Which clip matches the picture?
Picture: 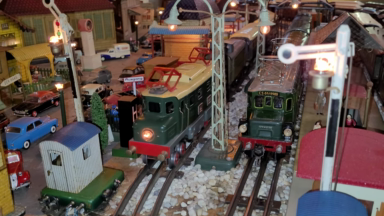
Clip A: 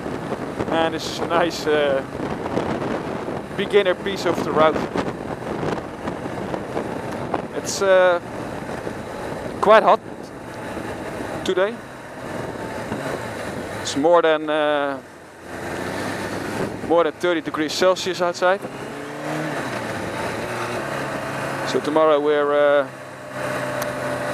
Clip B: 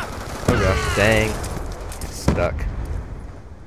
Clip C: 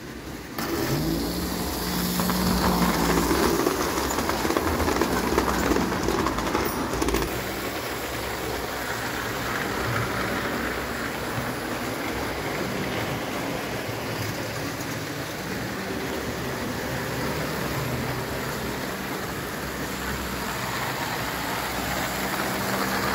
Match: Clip C